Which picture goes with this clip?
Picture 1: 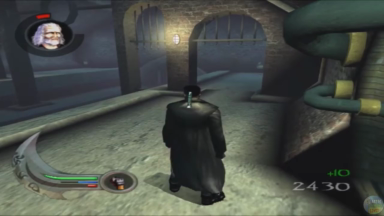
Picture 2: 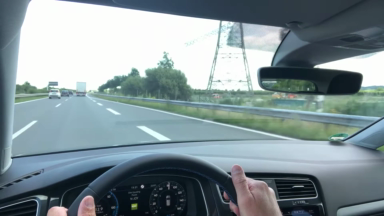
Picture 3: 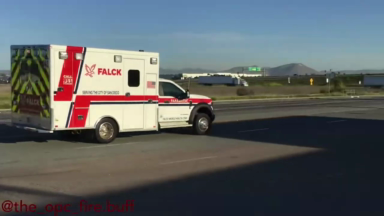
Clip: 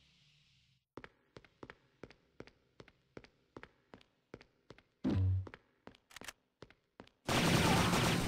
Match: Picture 1